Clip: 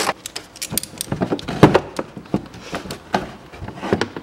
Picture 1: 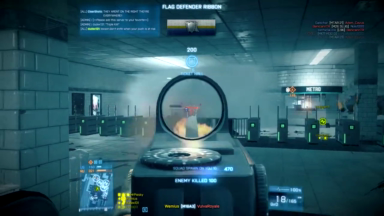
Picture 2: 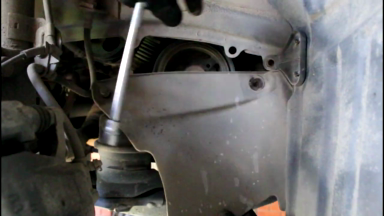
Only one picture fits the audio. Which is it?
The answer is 2